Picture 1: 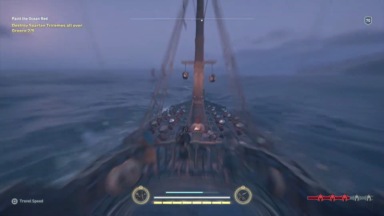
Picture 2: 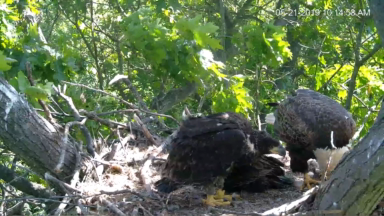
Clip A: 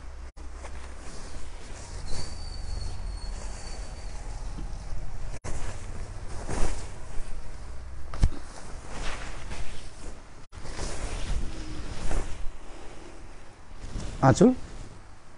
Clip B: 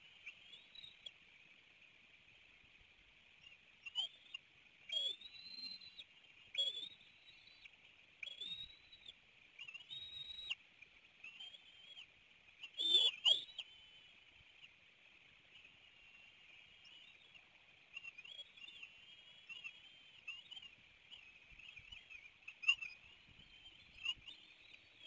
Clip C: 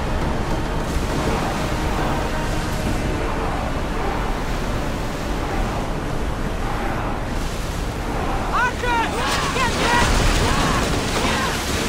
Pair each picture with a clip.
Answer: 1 C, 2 B